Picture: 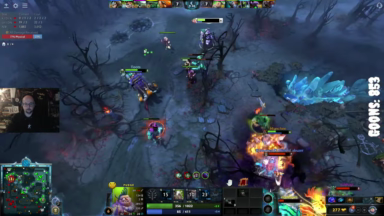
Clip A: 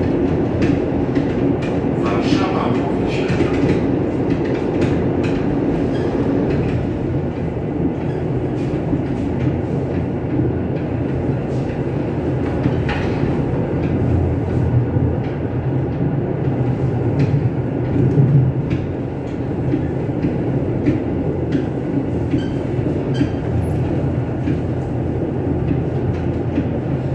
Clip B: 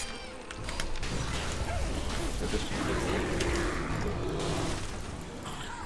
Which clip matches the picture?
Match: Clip B